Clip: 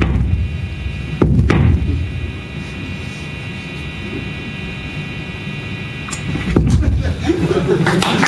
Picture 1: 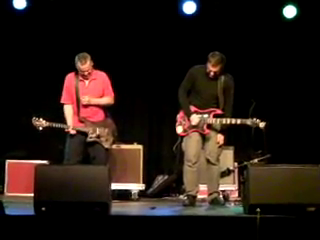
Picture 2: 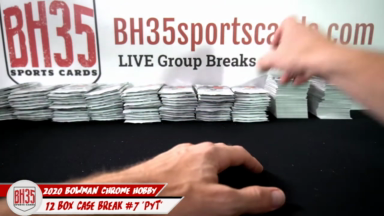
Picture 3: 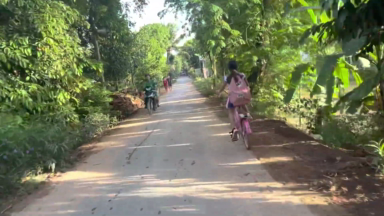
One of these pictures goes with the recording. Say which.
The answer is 1